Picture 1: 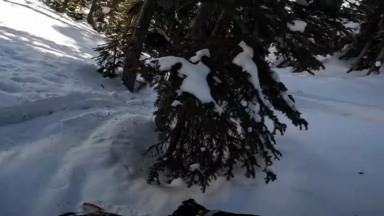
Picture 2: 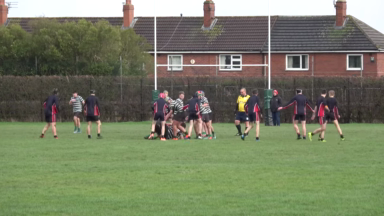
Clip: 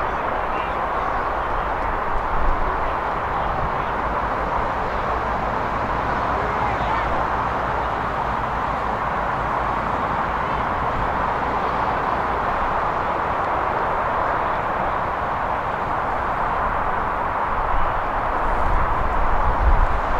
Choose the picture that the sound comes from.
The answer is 2